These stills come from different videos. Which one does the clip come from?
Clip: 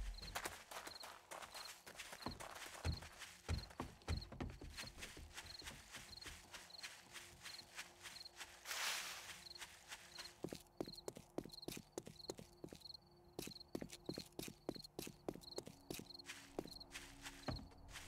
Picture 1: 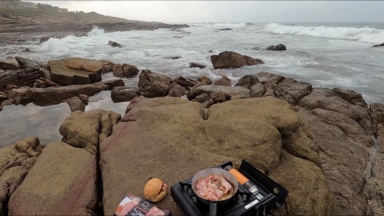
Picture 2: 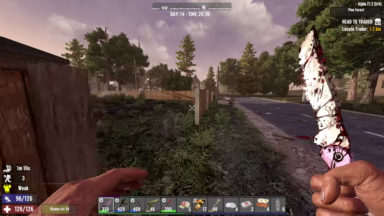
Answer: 2